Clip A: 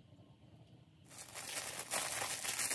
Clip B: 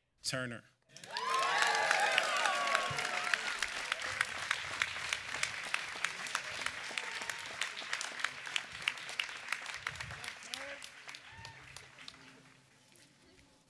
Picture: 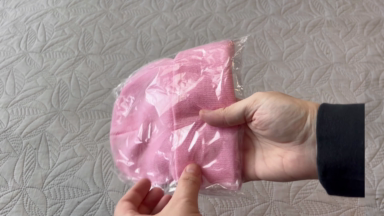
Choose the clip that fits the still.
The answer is A